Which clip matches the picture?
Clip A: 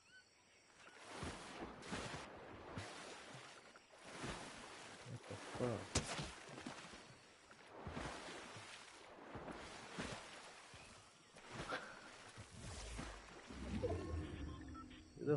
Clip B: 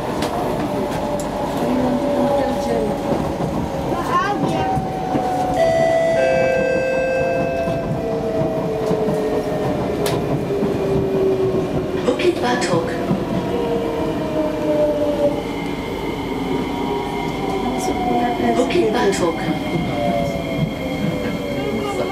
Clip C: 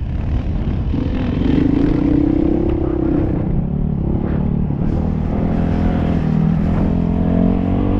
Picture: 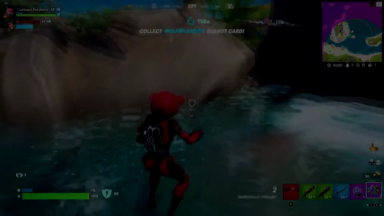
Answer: A